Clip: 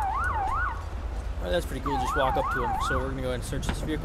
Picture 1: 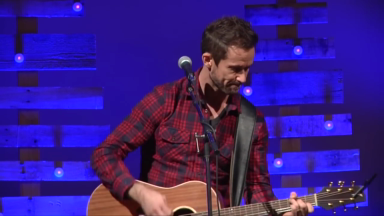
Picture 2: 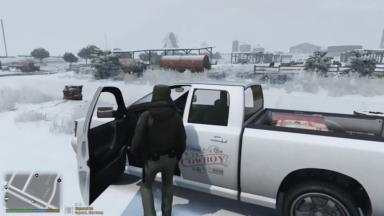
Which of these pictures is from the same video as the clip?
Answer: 2